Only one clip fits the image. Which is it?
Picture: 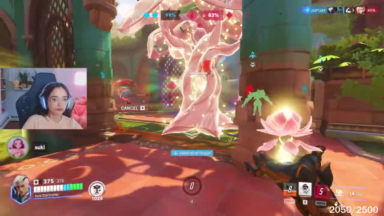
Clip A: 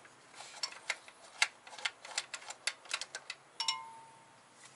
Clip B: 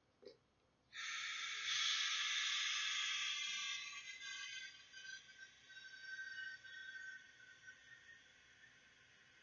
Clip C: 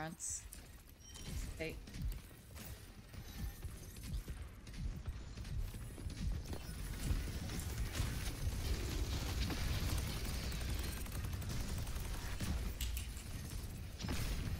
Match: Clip C